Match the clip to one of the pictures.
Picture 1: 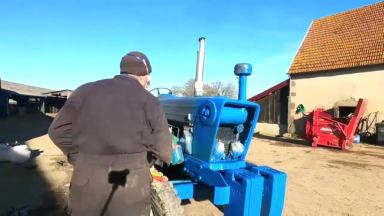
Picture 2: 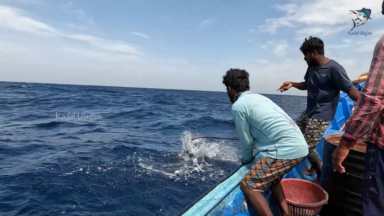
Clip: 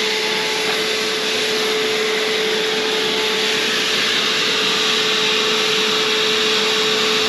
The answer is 1